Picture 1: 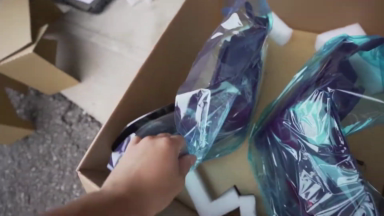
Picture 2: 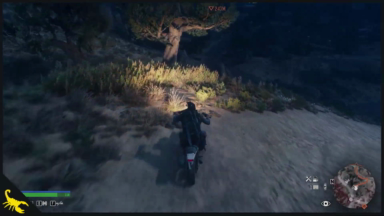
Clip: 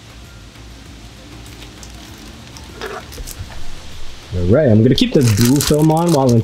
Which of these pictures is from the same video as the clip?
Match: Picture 1